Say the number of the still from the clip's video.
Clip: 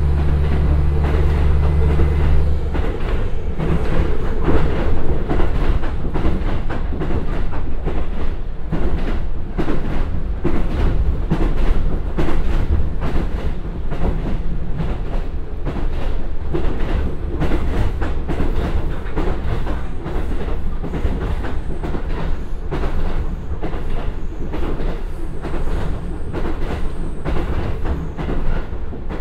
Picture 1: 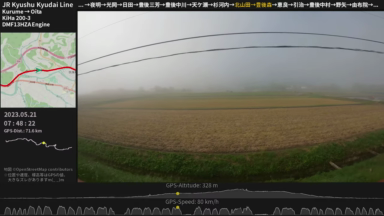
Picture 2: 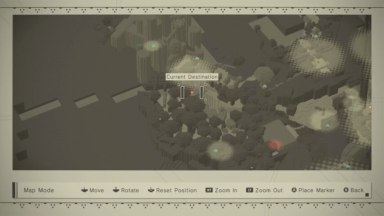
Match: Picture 1